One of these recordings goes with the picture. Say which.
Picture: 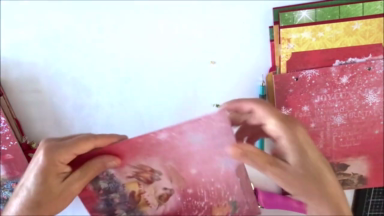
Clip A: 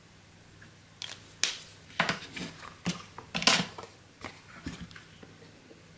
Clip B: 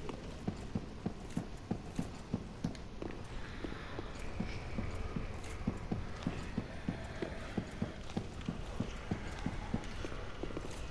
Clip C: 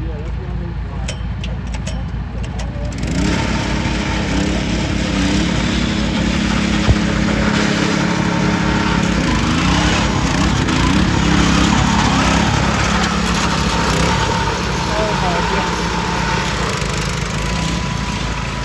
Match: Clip A